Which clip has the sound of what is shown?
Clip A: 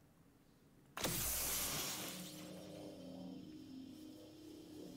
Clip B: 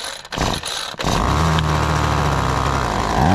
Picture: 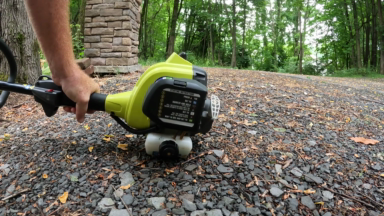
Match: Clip B